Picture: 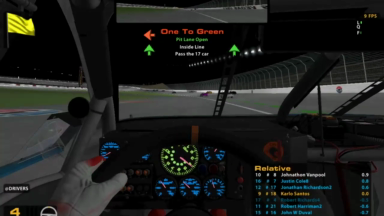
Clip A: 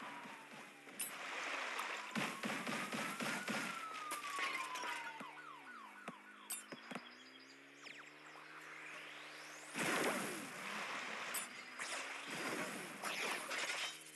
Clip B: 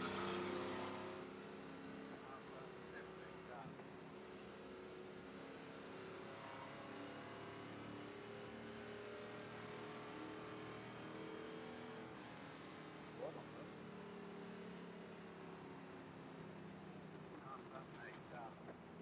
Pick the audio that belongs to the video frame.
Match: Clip B